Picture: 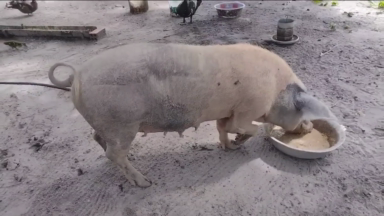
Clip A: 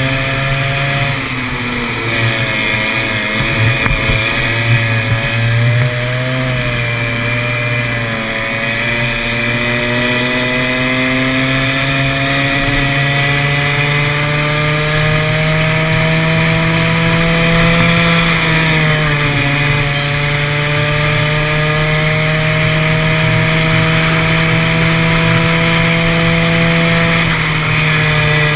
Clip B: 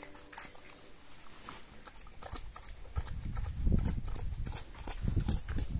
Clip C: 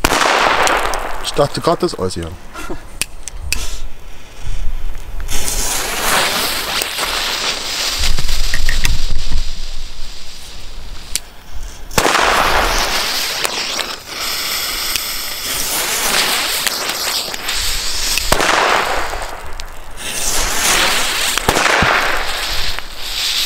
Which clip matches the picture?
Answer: B